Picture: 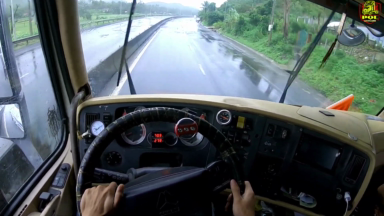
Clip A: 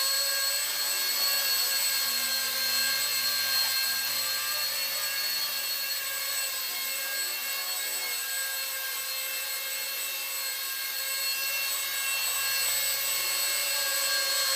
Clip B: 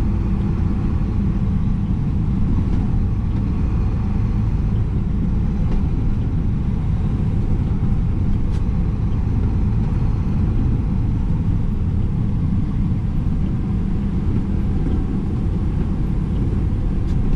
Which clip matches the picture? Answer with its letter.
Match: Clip B